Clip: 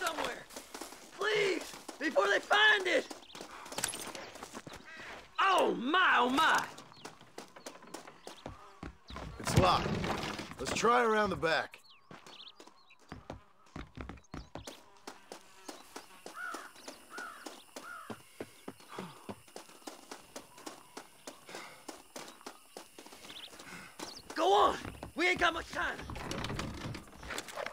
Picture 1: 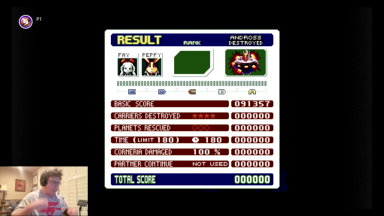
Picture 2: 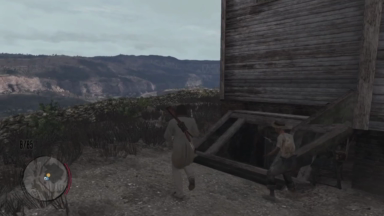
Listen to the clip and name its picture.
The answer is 2